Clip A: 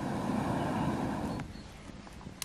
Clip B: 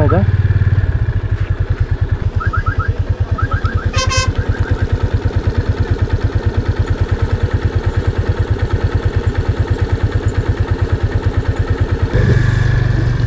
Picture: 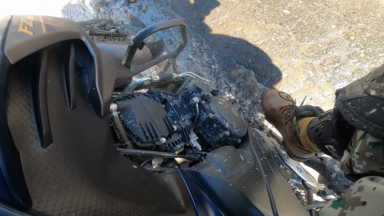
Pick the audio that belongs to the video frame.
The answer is B